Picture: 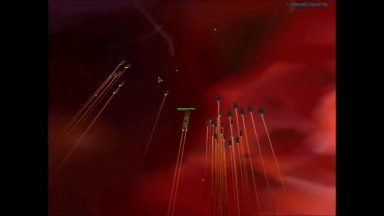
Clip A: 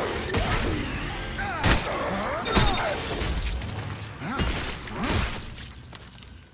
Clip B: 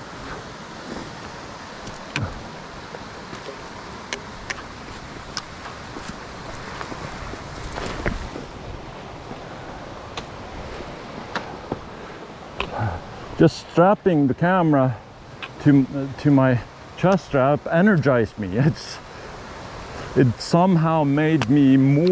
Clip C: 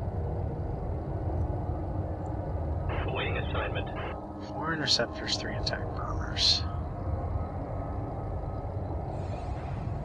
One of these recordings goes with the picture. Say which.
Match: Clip C